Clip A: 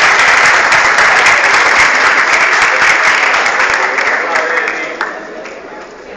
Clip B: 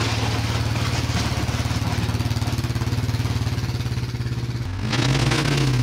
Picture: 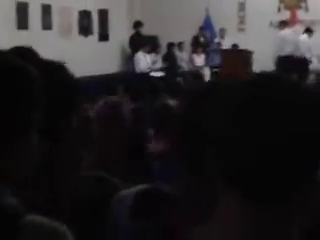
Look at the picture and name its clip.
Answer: A